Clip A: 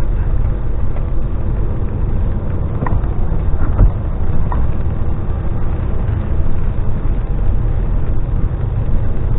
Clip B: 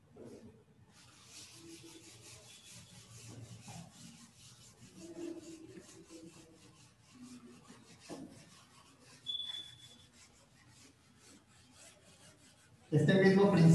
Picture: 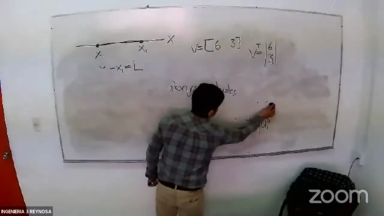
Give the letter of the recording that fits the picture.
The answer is B